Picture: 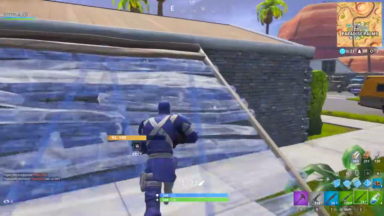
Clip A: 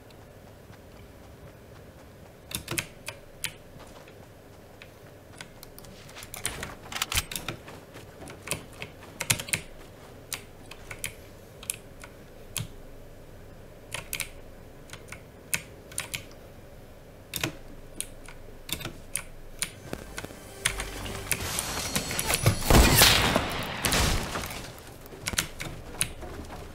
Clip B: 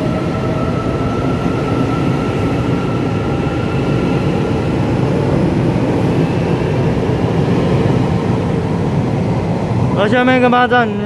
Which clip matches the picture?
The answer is A